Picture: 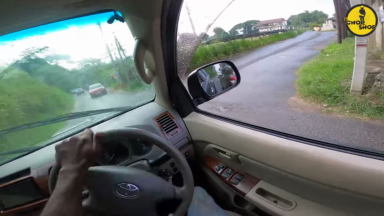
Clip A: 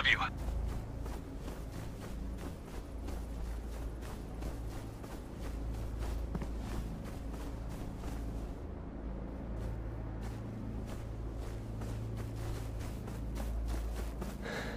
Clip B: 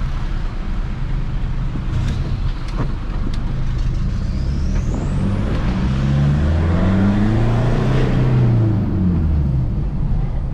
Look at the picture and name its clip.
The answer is B